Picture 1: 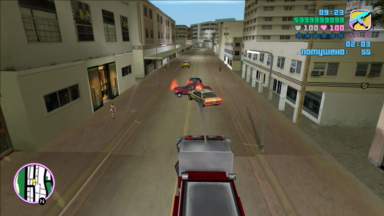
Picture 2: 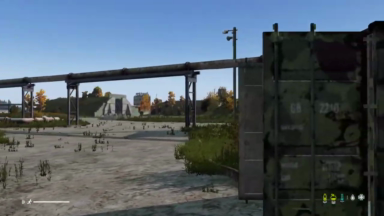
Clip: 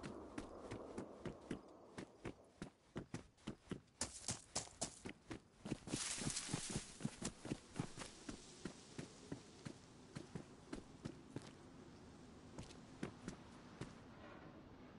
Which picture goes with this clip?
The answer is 2